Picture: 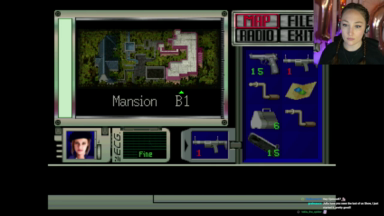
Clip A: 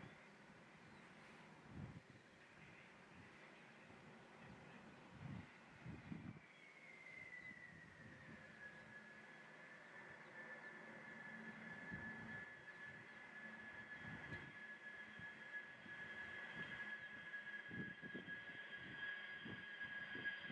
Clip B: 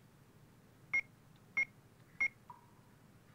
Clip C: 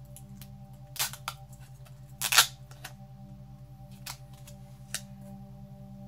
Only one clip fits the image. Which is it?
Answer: B